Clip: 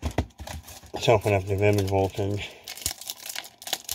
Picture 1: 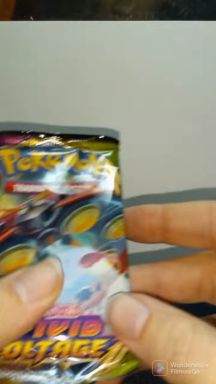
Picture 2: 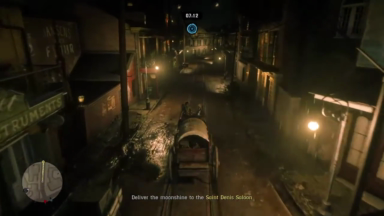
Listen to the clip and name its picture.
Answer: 1